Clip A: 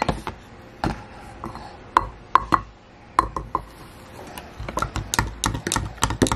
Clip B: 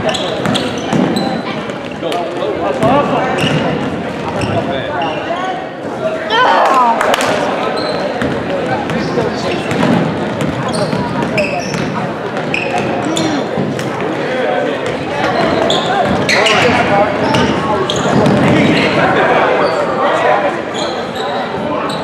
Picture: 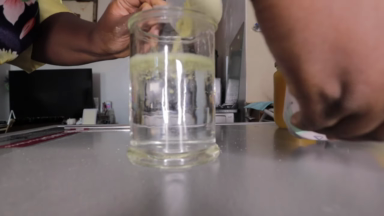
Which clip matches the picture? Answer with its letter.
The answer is A